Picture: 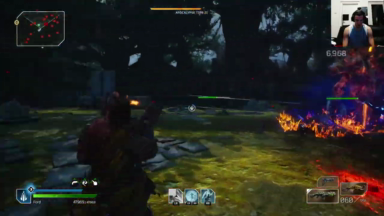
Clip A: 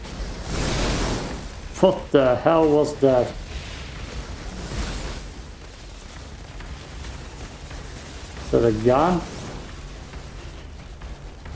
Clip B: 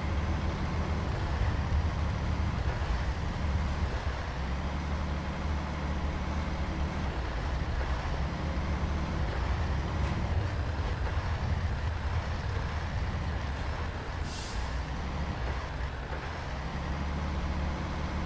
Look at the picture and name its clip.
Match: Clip A